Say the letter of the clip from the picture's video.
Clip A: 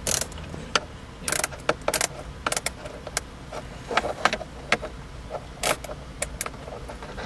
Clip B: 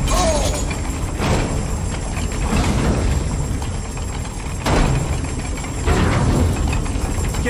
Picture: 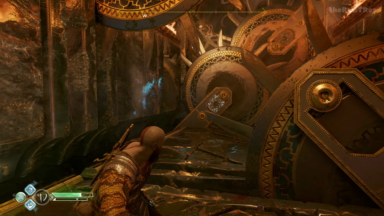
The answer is B